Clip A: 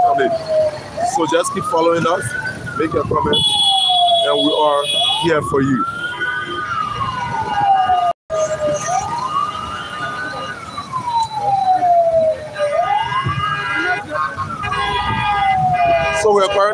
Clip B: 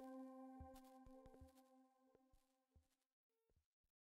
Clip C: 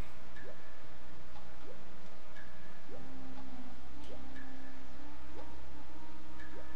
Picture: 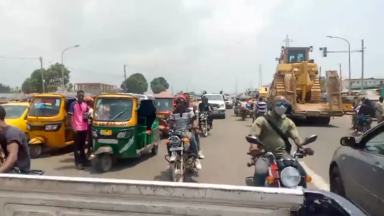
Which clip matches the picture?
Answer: A